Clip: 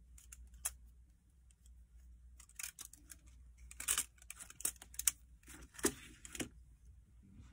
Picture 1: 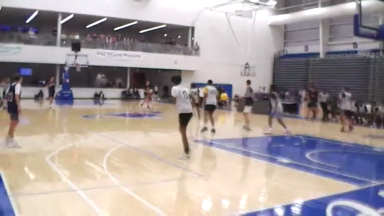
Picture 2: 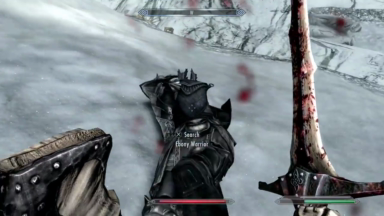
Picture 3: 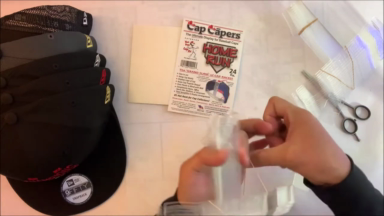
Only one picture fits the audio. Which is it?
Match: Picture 3